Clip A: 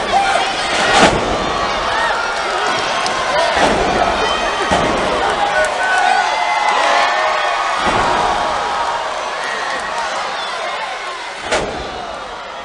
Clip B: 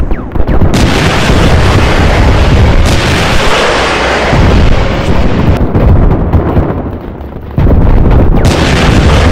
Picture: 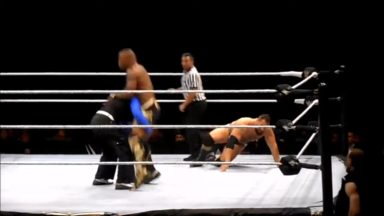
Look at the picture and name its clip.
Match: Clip A